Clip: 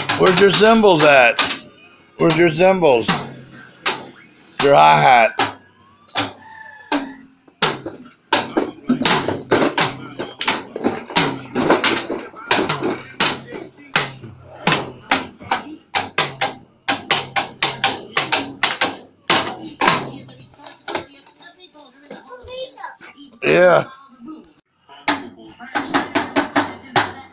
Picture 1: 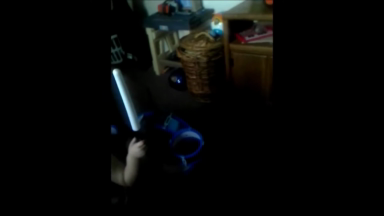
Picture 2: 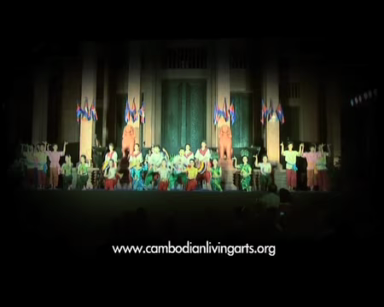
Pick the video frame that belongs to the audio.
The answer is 1